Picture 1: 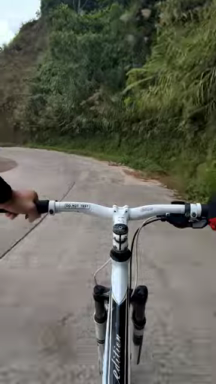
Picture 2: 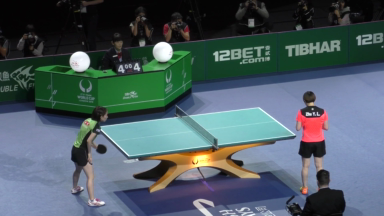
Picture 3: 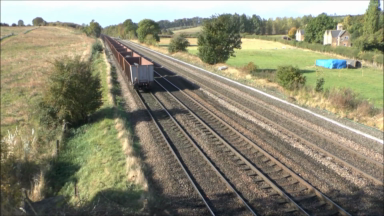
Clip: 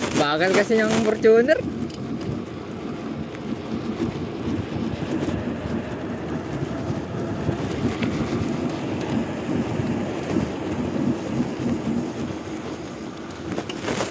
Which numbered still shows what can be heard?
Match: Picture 1